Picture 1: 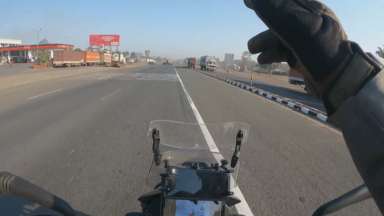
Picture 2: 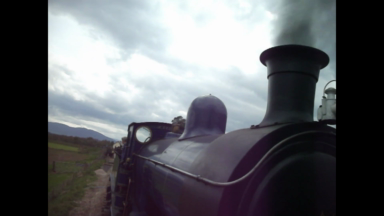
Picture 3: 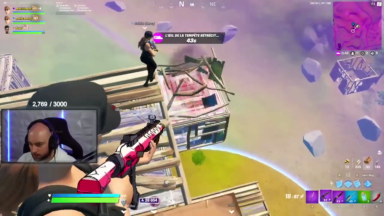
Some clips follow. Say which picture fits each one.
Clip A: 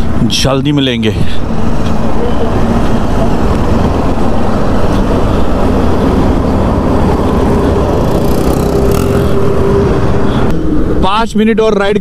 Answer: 1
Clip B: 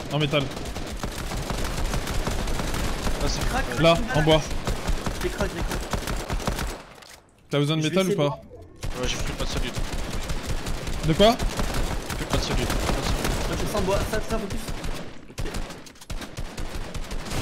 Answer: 3